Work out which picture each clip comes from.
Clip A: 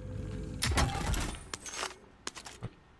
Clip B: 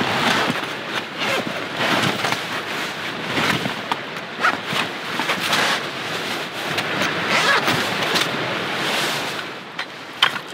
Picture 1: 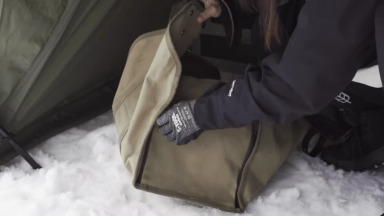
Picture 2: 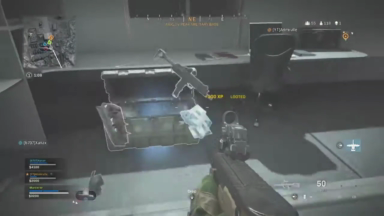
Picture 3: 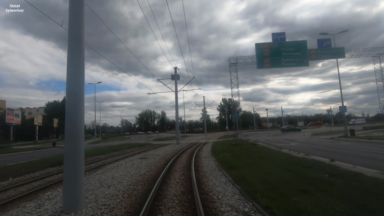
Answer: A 2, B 1